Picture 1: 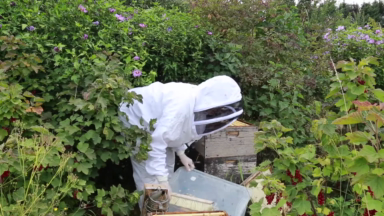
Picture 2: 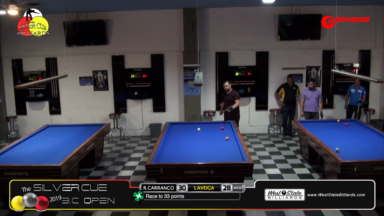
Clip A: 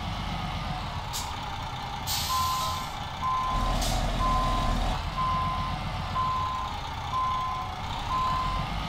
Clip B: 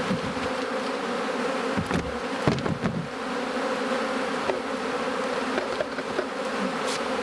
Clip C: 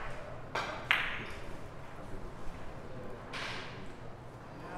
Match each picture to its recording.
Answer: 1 B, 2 C